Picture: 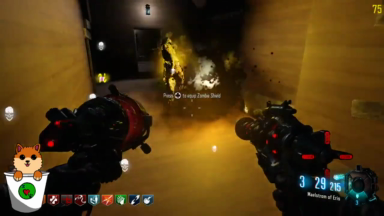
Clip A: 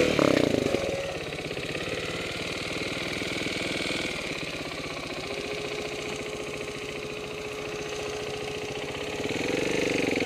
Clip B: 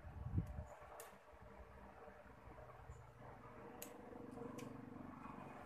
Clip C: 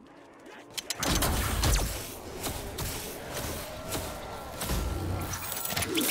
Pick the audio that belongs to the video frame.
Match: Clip C